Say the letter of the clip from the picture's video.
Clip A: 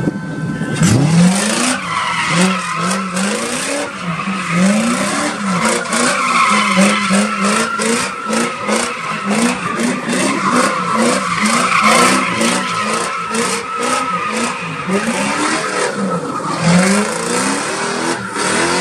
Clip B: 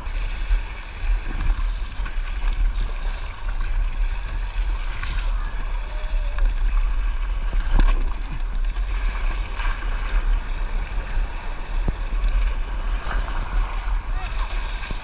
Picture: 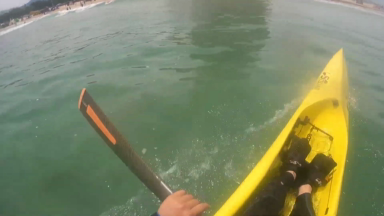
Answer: B